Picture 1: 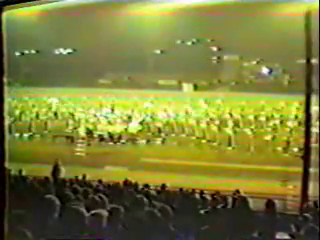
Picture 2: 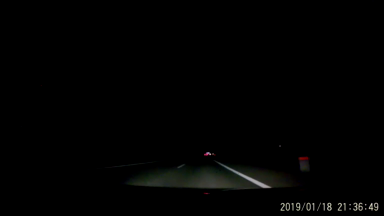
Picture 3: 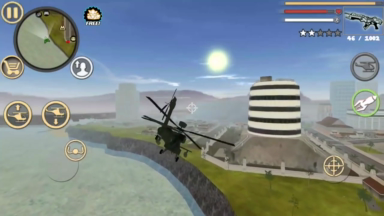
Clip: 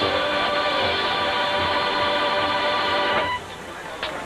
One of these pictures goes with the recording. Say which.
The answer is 1